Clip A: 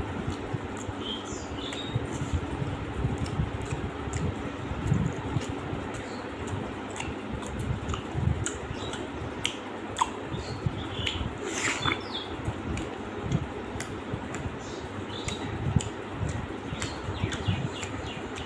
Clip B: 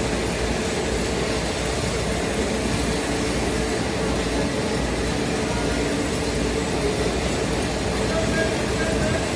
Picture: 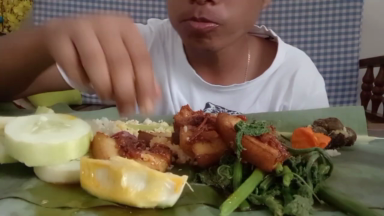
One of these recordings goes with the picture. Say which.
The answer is A